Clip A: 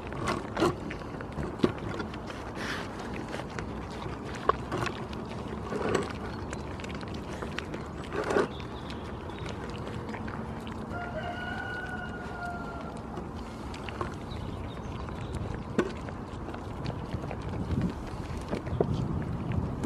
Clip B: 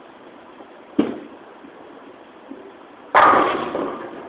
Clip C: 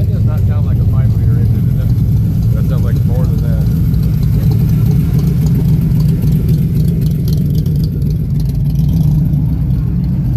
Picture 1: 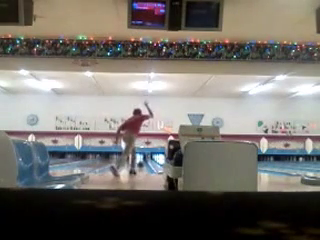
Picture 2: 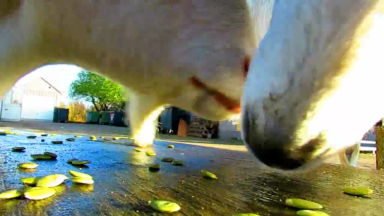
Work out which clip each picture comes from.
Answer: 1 B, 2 A